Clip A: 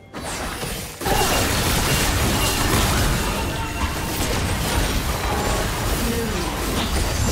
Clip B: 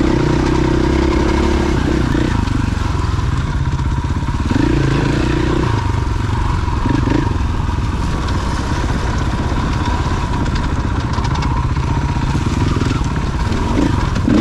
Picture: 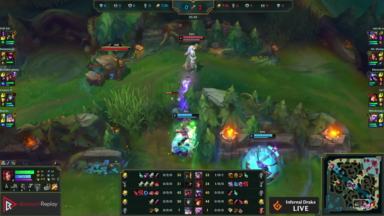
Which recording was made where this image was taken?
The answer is A